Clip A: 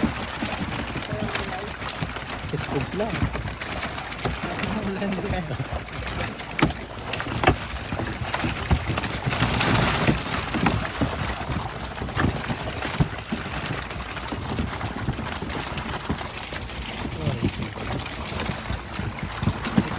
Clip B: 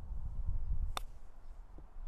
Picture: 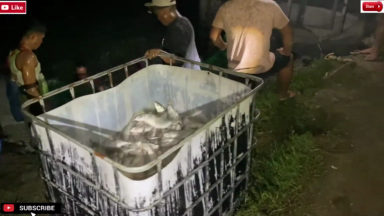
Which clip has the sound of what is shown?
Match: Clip A